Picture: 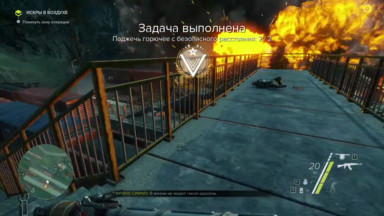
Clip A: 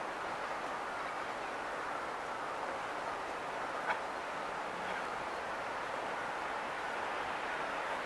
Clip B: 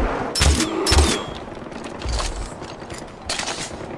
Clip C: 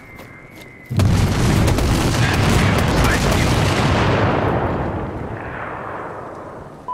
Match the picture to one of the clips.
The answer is C